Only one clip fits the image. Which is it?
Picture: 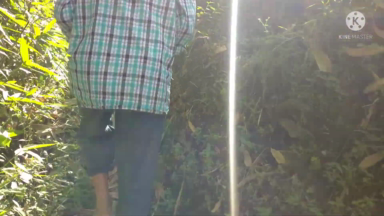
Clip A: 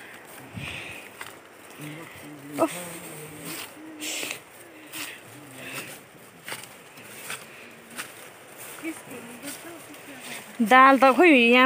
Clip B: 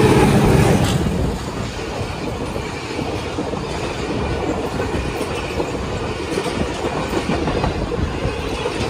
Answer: A